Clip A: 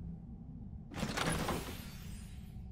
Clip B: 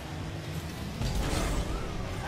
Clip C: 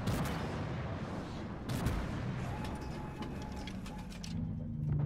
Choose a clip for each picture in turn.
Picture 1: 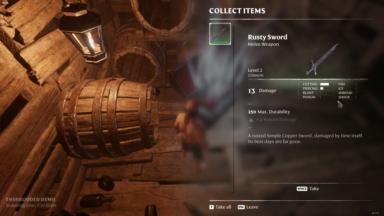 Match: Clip A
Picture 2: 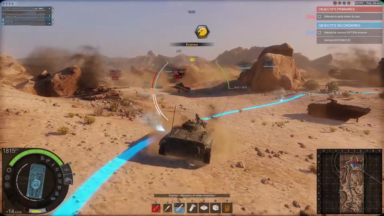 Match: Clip C